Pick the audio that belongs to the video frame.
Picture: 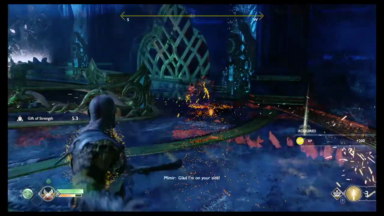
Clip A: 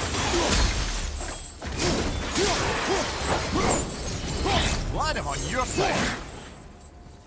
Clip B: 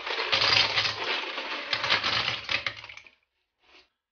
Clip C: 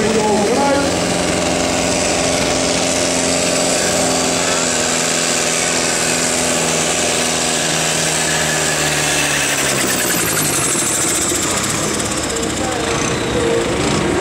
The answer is A